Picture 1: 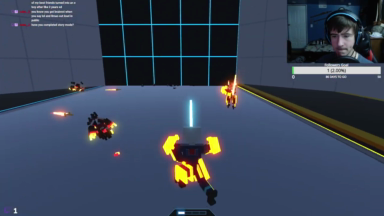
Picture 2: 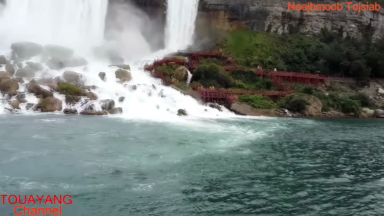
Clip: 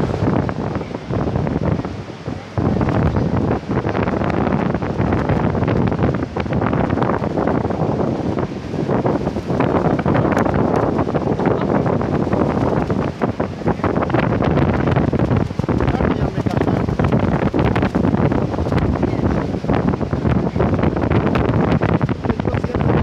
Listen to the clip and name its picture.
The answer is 2